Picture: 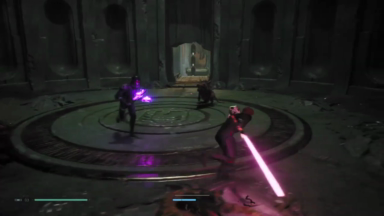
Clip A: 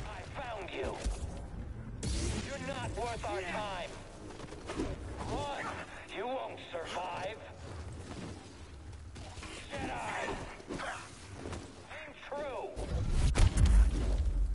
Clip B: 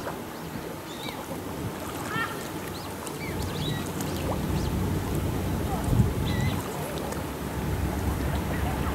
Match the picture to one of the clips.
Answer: A